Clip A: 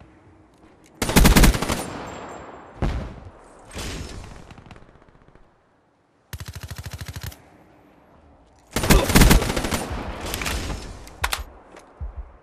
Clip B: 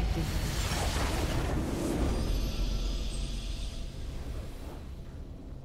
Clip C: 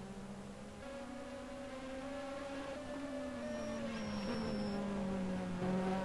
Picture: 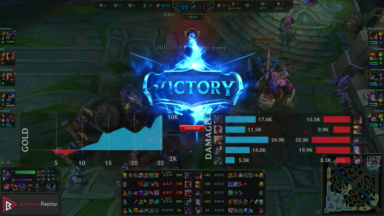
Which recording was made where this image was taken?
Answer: B